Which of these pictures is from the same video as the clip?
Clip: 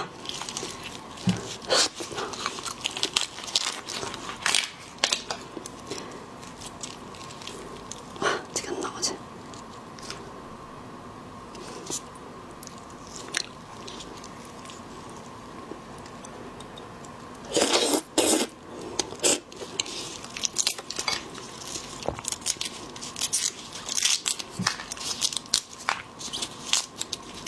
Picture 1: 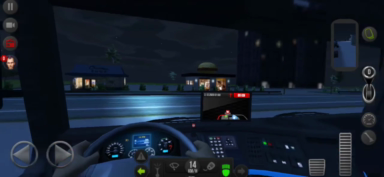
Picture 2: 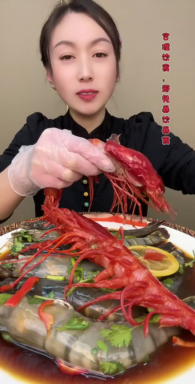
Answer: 2